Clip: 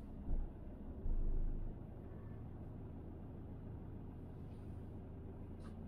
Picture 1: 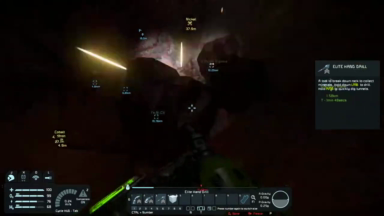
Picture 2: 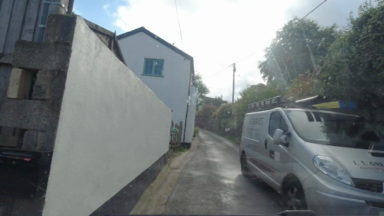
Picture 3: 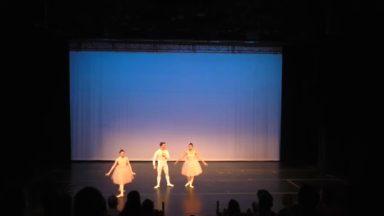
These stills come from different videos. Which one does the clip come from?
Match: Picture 2